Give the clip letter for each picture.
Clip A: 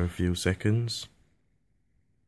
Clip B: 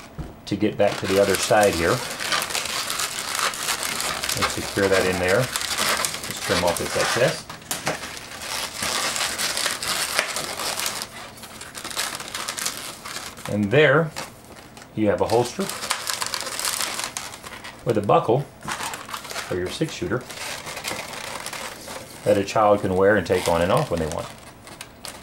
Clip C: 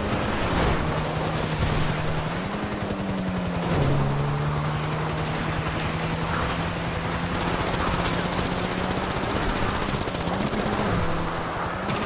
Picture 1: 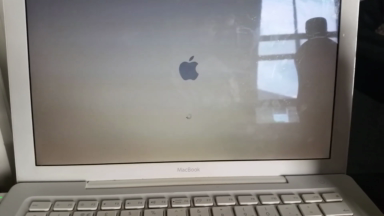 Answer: A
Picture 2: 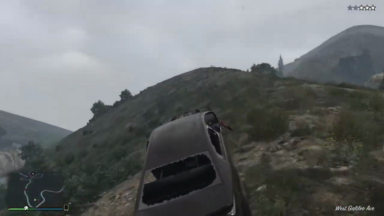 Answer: C